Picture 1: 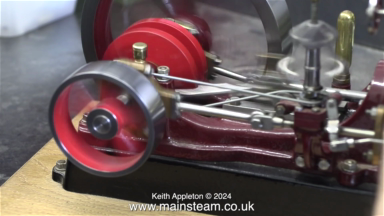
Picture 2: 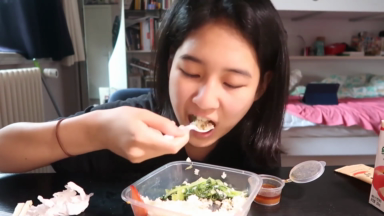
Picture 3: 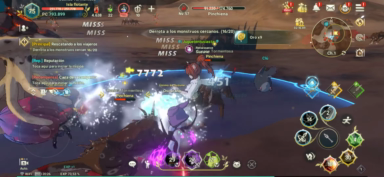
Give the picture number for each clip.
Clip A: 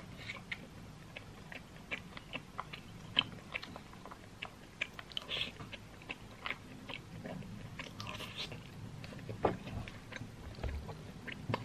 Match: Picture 2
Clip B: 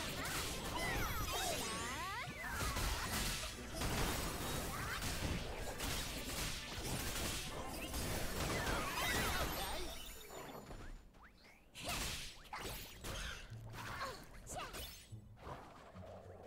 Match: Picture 3